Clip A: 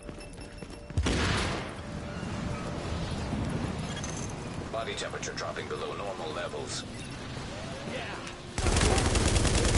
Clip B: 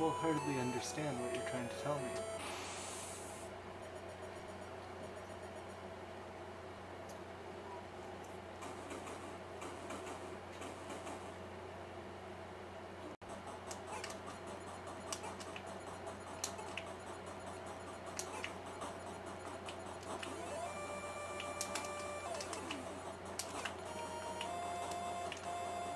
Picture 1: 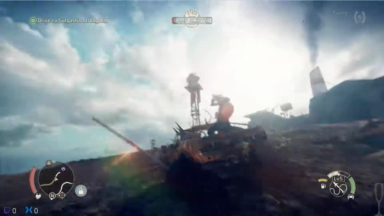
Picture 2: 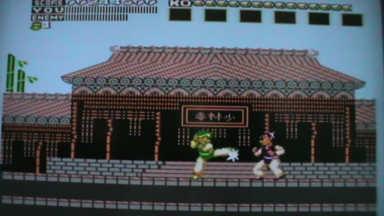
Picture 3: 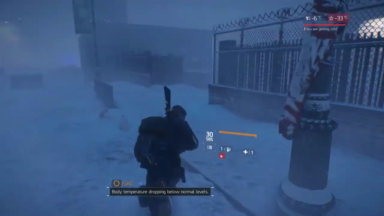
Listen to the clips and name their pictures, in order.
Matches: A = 3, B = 2